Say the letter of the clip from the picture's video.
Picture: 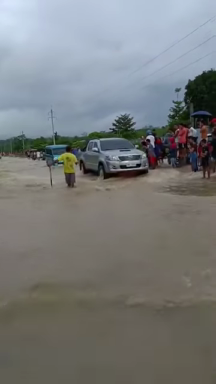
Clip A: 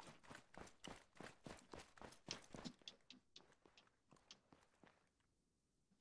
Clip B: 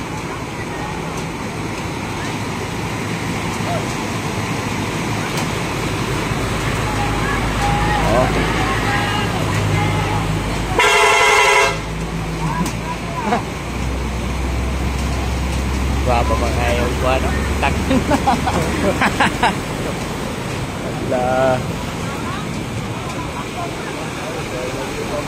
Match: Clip B